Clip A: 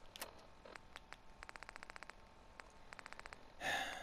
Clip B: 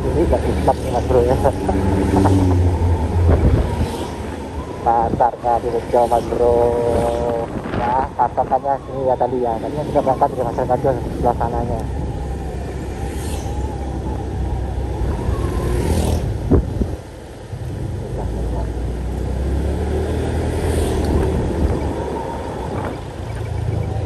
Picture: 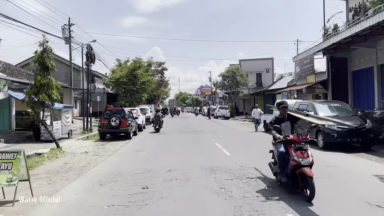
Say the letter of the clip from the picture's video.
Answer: B